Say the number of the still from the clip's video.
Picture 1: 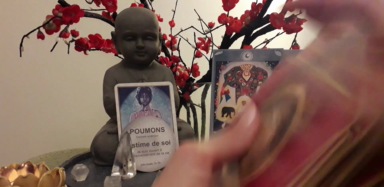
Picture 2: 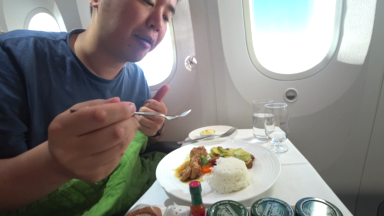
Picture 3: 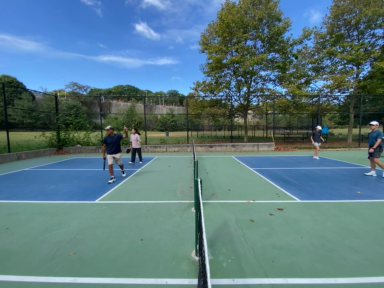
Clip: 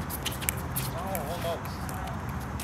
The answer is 3